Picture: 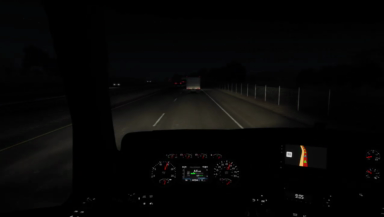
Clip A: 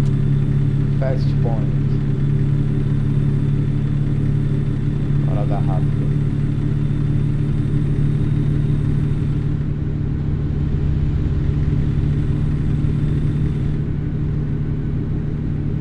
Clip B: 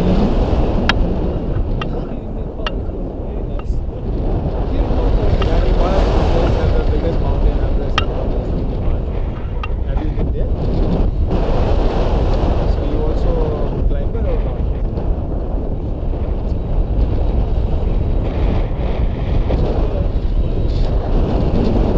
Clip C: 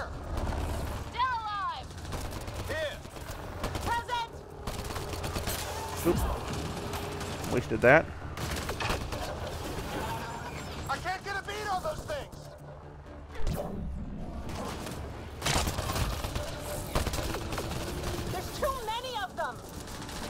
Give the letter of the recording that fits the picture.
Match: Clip A